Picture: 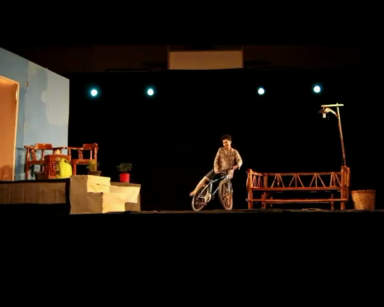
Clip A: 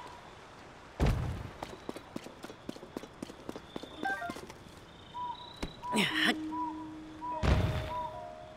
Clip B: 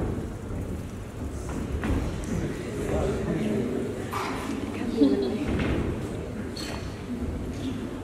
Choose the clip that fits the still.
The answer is B